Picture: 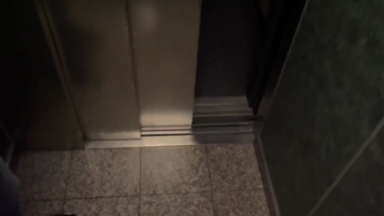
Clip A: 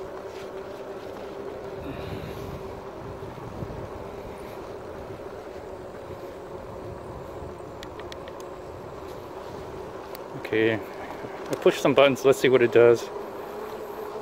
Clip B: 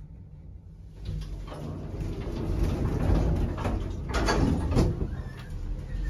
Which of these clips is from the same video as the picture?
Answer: B